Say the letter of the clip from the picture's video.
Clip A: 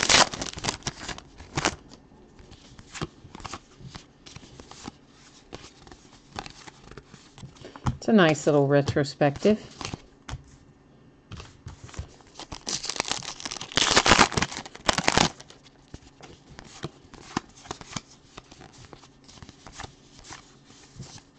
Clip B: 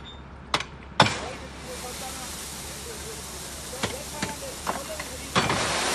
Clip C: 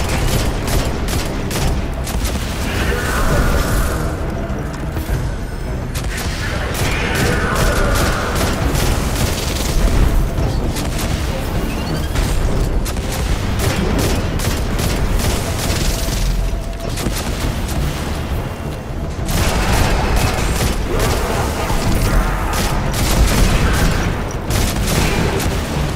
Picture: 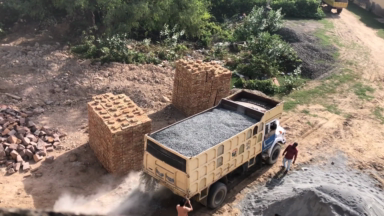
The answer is B